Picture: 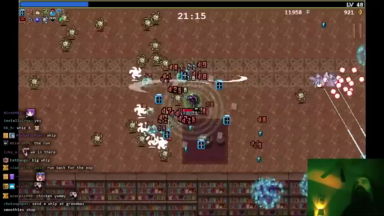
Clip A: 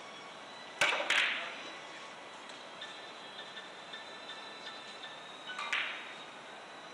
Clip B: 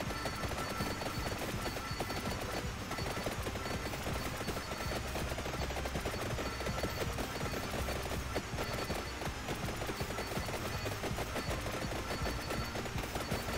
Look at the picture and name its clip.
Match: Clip B